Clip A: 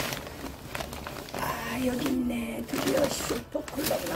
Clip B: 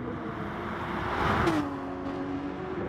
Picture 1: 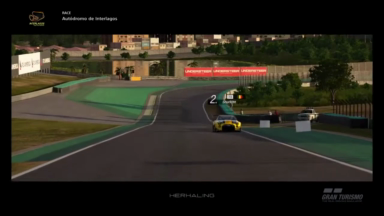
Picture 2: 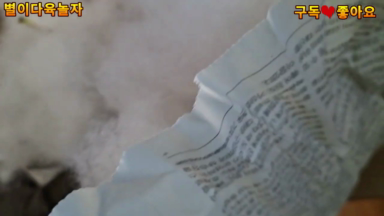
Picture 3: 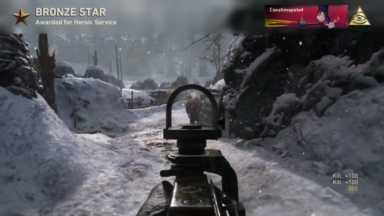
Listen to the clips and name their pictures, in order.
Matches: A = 2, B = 1